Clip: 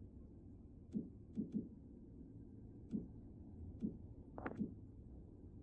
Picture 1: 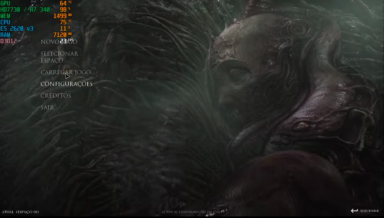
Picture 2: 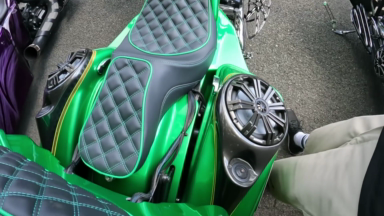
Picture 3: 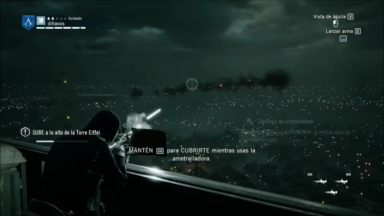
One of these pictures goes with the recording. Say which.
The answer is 1